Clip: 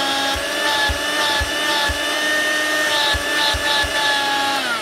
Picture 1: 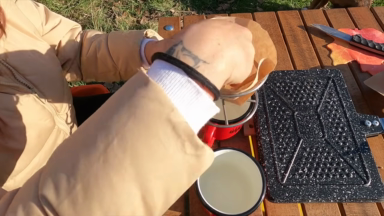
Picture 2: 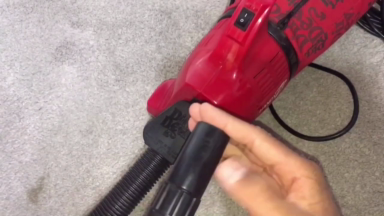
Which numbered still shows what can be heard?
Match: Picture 2